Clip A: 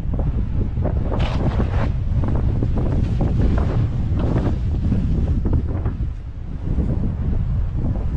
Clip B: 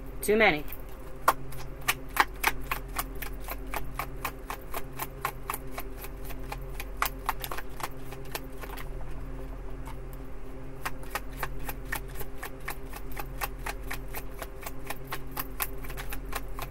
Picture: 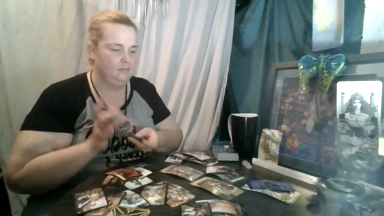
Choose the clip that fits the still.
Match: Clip B